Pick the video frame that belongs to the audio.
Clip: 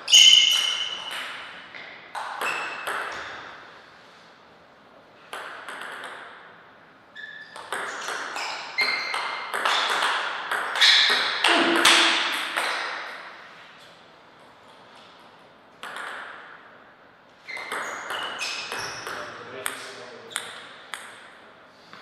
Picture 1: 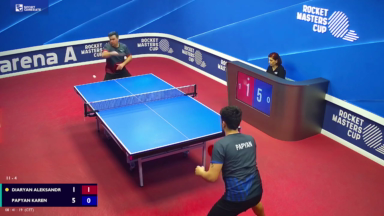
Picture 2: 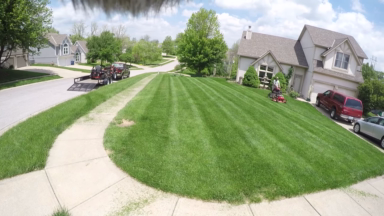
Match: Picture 1